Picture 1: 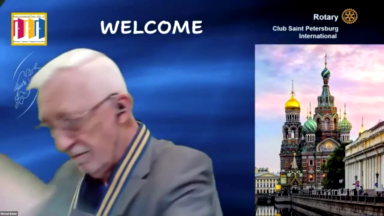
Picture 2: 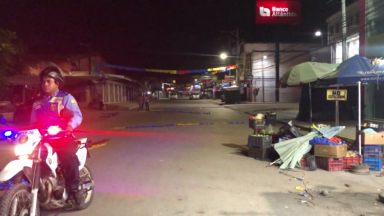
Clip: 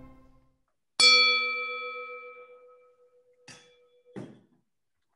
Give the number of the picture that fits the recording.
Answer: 1